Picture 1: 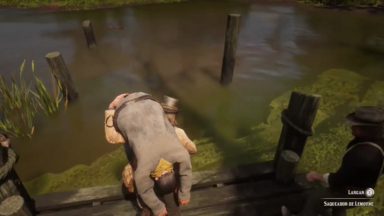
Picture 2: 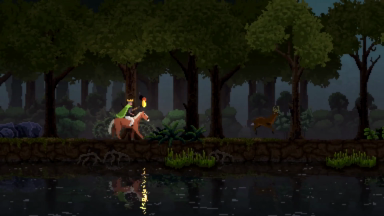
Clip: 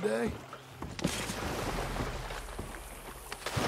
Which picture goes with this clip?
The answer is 1